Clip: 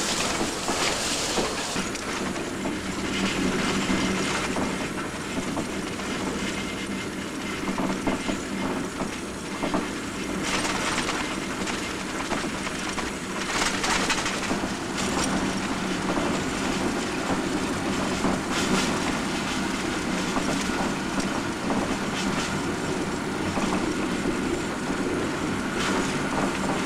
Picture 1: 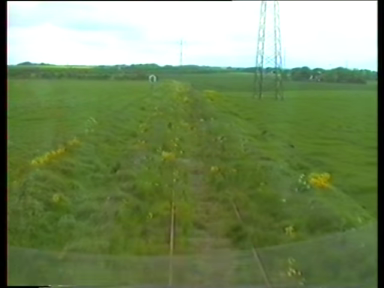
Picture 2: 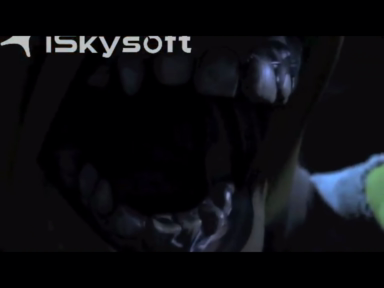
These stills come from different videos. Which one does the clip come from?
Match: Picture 1